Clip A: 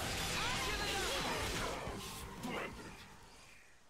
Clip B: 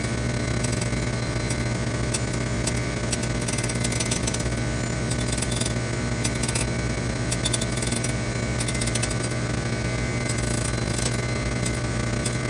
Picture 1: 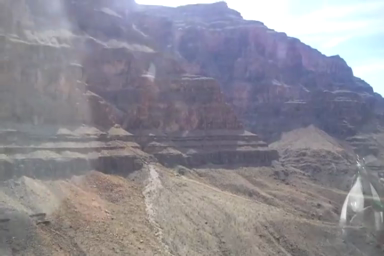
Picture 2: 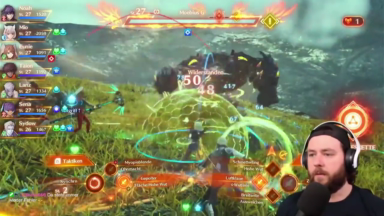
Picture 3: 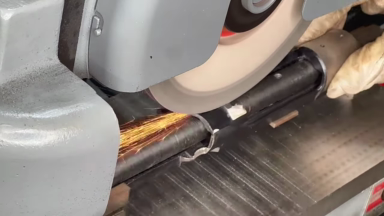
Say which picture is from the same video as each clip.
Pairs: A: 2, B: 3